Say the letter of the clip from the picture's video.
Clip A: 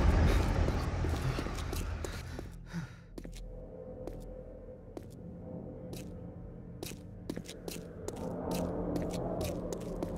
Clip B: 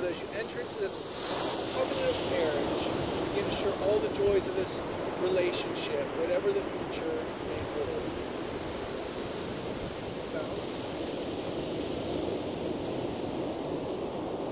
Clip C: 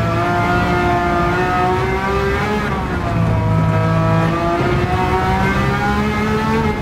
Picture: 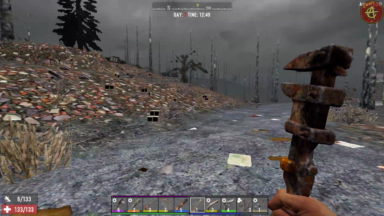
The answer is A